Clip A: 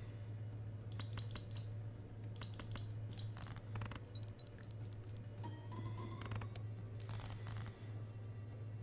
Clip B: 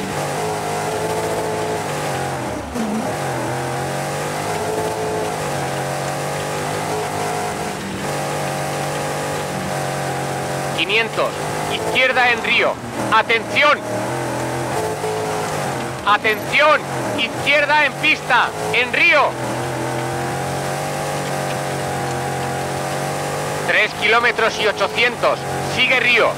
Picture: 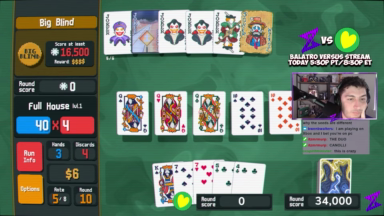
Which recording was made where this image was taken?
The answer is A